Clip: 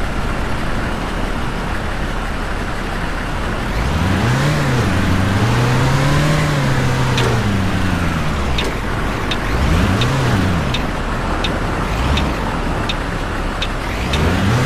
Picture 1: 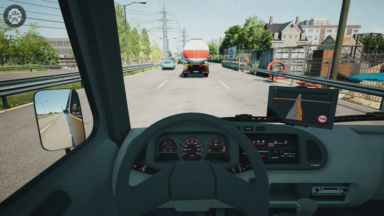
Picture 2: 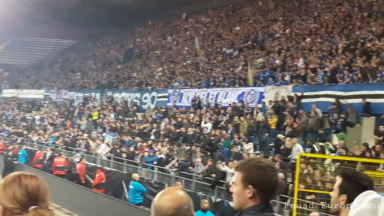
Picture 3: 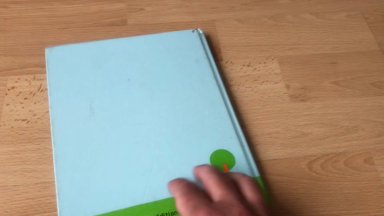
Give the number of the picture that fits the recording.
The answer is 1